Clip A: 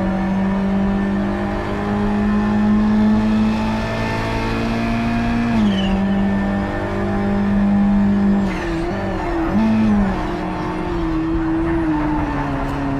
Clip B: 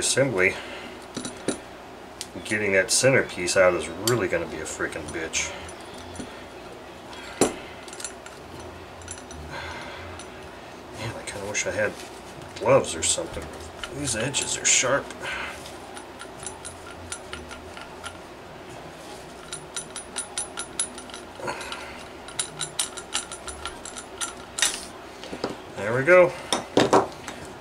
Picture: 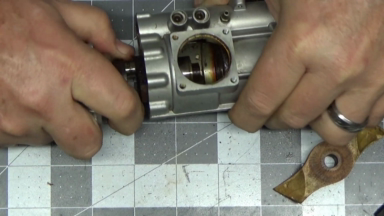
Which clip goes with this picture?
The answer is B